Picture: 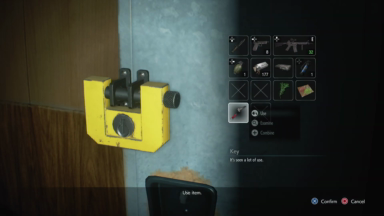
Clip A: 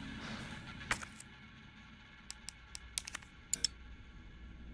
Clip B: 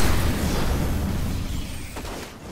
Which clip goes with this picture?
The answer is A